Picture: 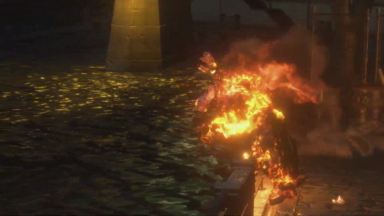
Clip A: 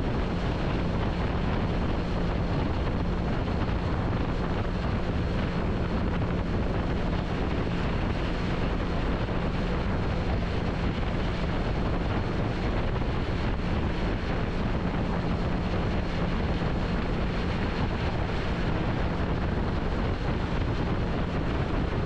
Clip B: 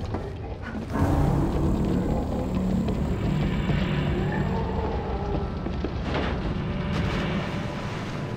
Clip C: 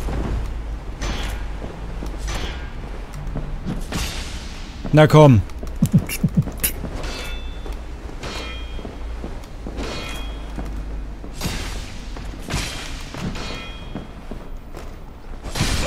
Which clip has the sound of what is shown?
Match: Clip B